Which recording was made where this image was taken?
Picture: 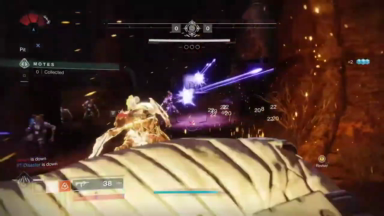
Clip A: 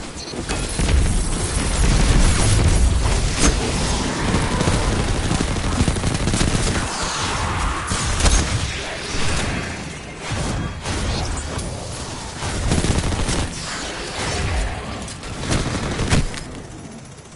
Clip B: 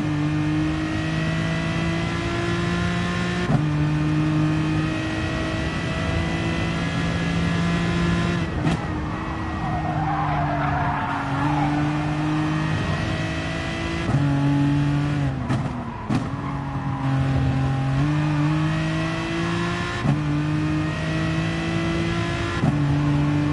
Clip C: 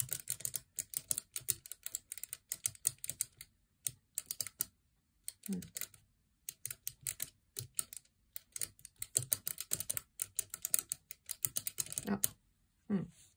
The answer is A